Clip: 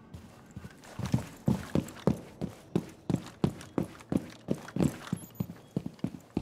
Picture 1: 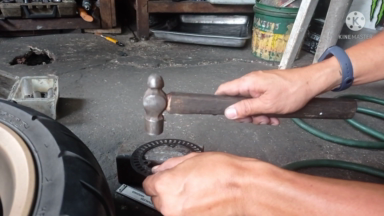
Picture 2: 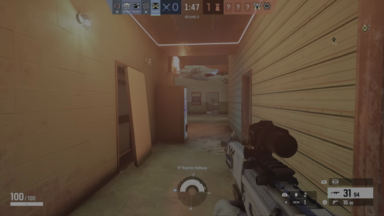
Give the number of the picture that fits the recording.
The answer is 2